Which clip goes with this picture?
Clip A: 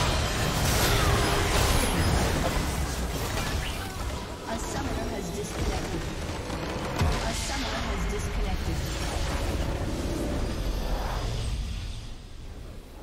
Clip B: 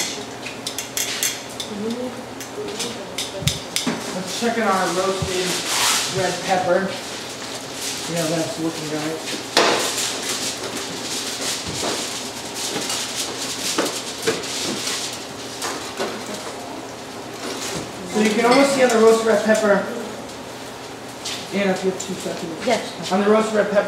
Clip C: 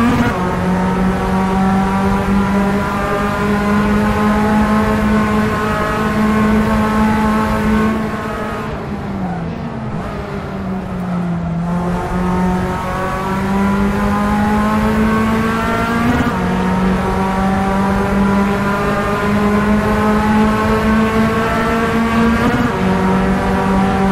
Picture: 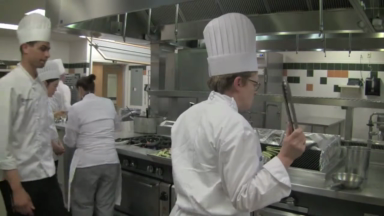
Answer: B